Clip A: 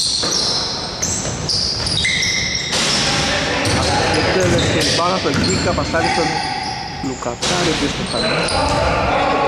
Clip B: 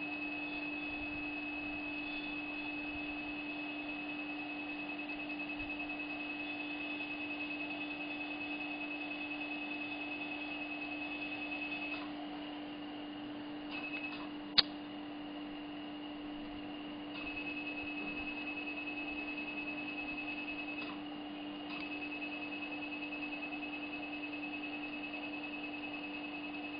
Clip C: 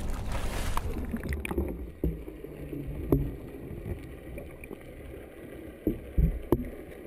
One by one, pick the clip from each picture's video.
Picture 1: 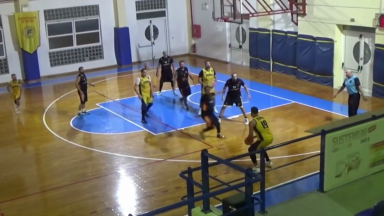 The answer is A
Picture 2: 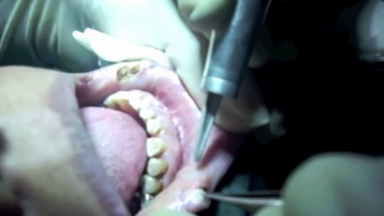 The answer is B